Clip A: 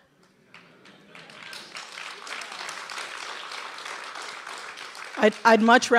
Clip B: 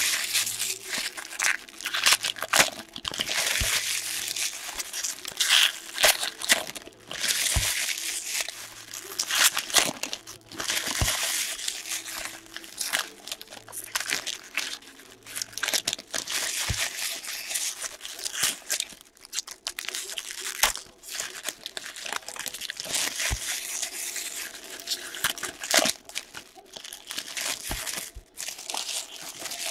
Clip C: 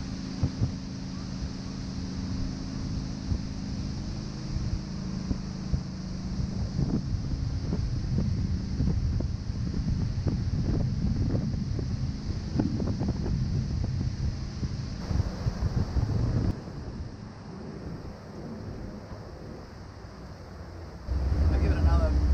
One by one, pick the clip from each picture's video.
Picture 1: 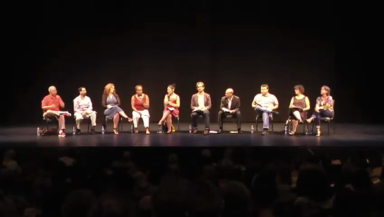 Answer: A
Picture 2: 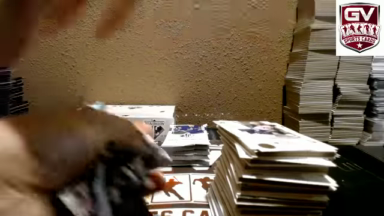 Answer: B